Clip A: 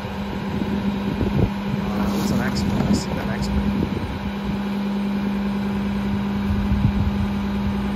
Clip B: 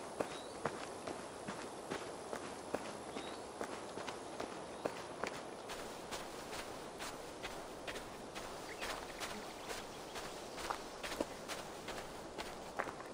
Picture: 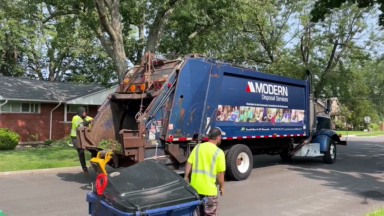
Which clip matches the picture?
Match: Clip A